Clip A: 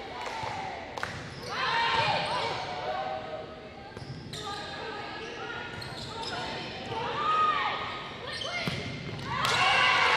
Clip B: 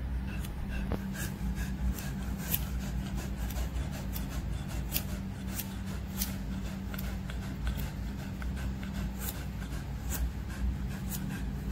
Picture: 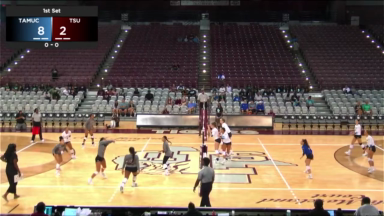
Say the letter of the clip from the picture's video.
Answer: A